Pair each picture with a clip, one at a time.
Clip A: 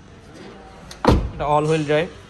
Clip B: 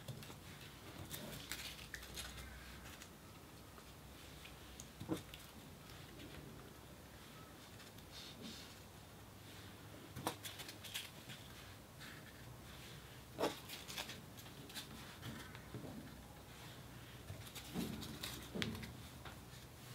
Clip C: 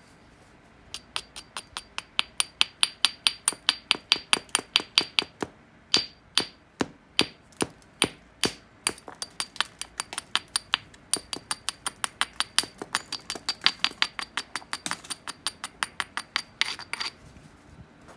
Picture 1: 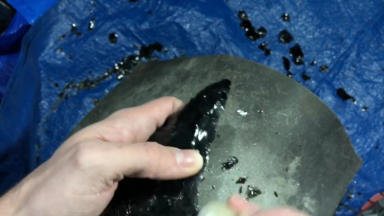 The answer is C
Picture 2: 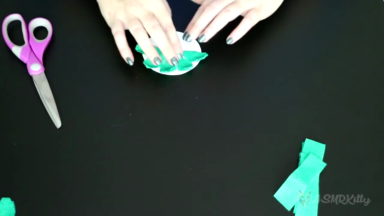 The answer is B